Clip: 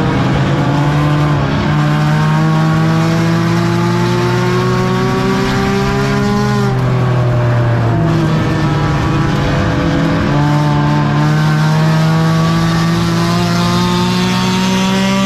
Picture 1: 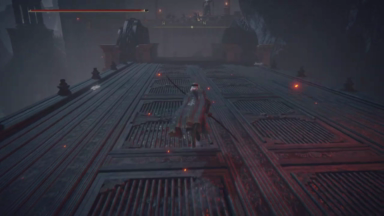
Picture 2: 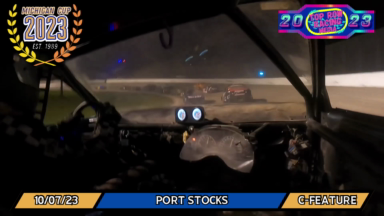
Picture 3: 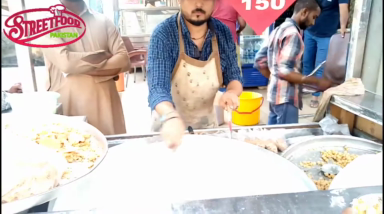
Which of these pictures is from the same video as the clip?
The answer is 2